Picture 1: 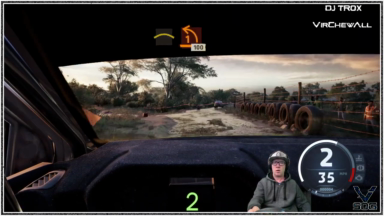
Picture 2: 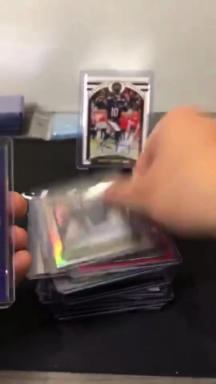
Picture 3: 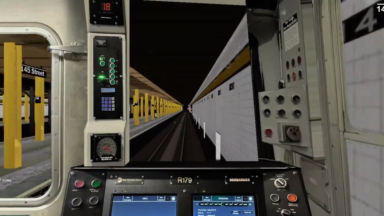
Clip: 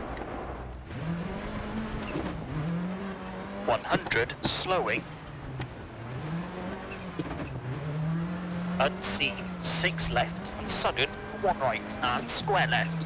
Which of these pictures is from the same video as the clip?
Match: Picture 1